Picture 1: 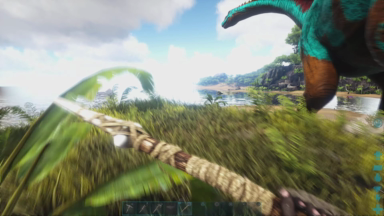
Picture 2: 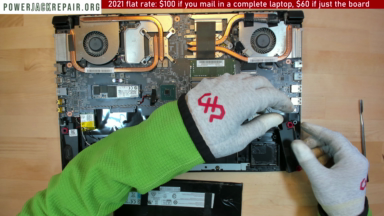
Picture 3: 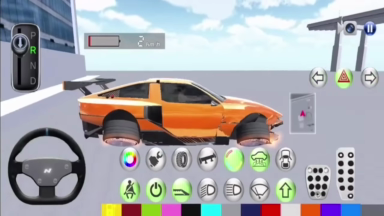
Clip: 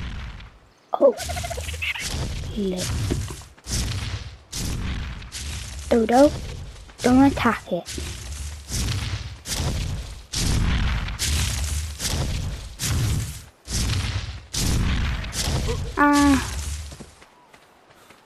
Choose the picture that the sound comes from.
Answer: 1